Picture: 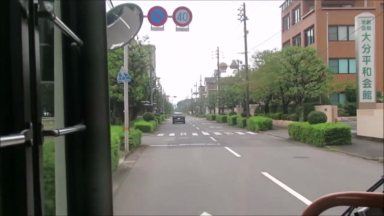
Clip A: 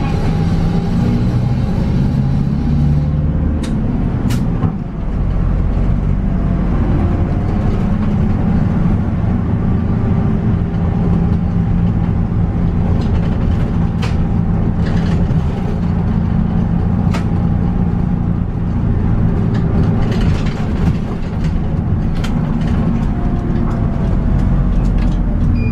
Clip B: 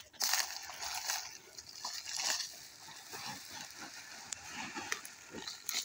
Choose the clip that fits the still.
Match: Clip A